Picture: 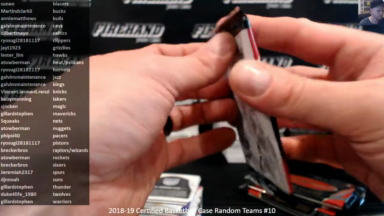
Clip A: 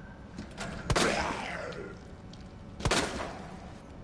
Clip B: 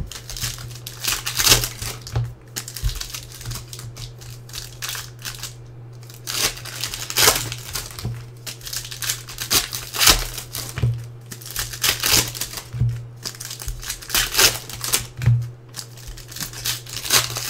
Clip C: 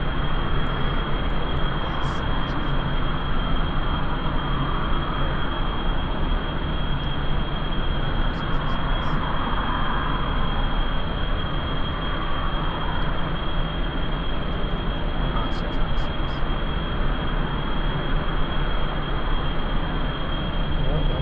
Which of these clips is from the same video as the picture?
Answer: B